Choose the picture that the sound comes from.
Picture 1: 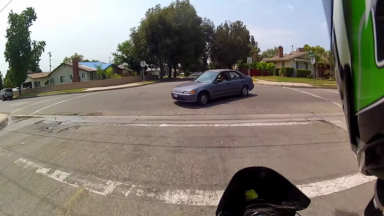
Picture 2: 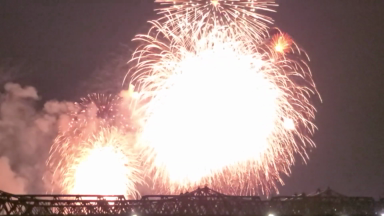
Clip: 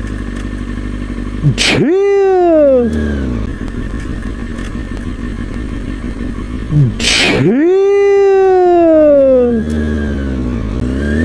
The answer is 1